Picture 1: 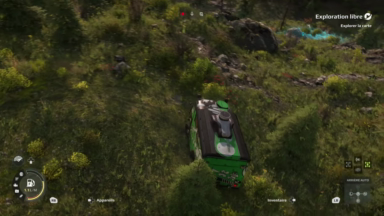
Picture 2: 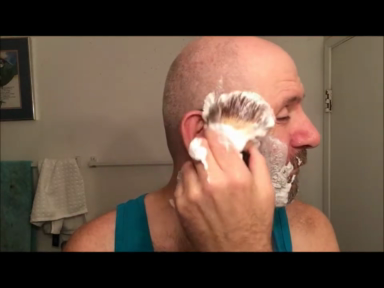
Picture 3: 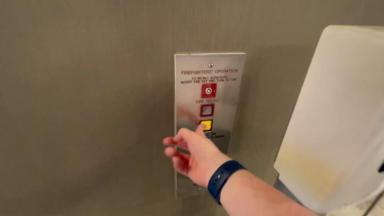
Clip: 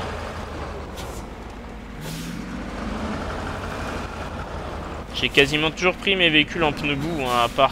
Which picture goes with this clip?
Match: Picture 1